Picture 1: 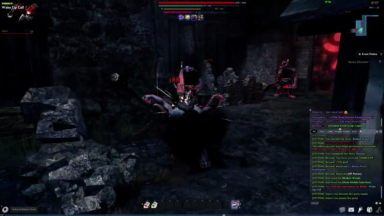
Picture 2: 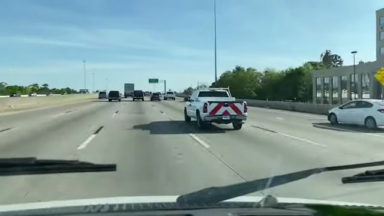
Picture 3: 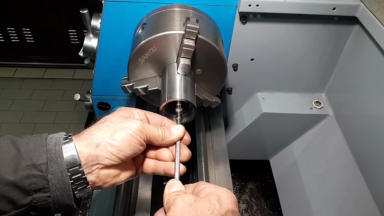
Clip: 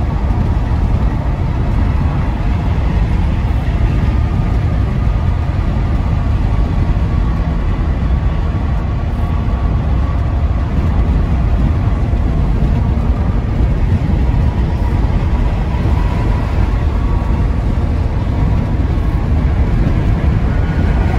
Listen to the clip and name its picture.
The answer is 2